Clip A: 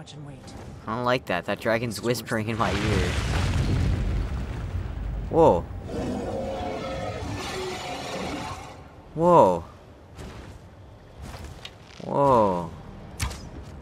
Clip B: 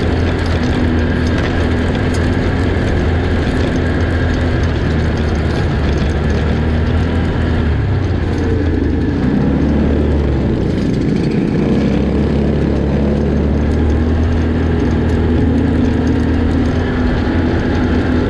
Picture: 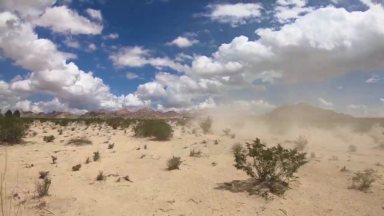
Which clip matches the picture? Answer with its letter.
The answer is B